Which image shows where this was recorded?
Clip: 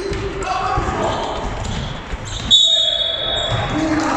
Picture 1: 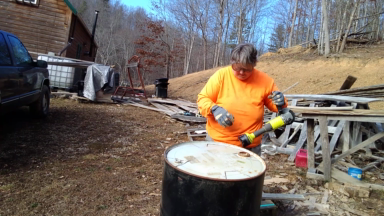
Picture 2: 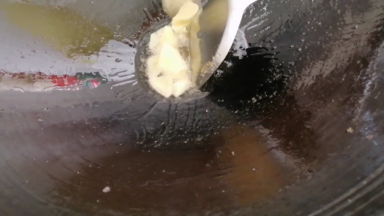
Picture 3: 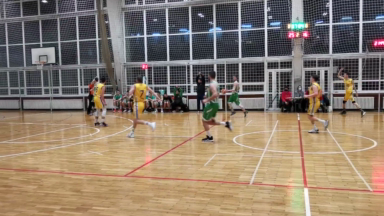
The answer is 3